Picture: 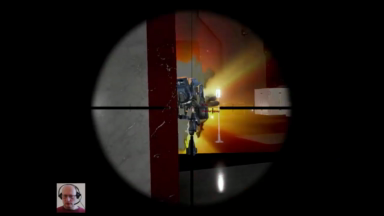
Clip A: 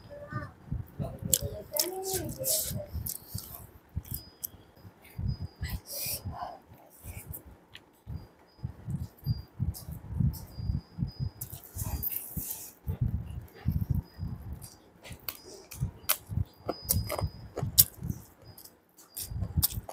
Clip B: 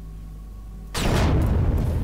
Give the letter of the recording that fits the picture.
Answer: B